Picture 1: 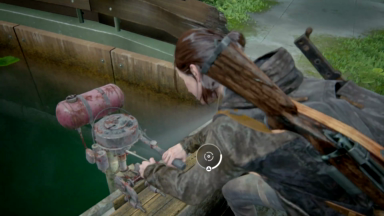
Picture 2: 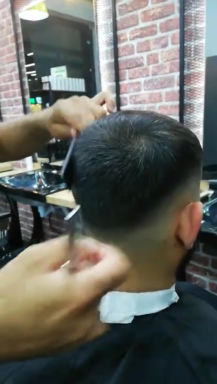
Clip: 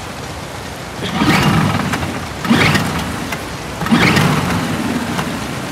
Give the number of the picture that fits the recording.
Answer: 1